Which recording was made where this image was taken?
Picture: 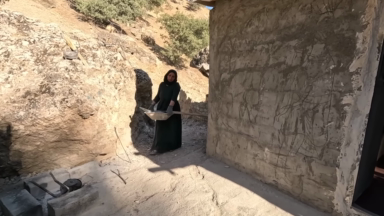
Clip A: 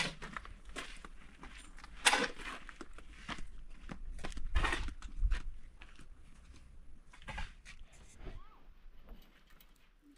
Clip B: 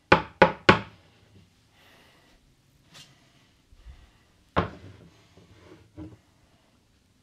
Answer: A